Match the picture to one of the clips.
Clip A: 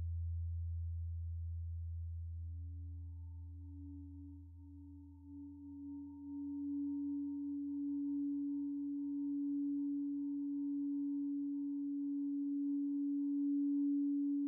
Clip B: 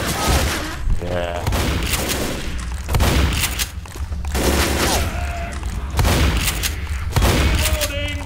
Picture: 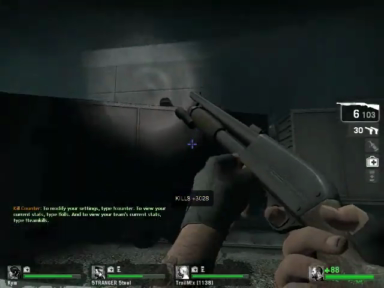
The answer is B